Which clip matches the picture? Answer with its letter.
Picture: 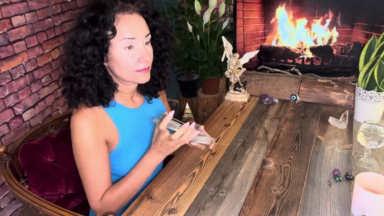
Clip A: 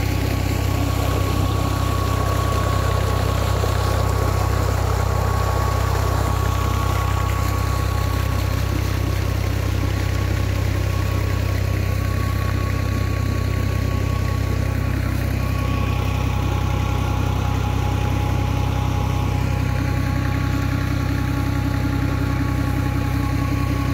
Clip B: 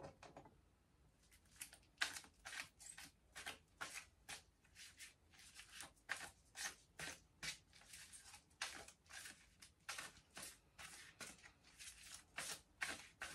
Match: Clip B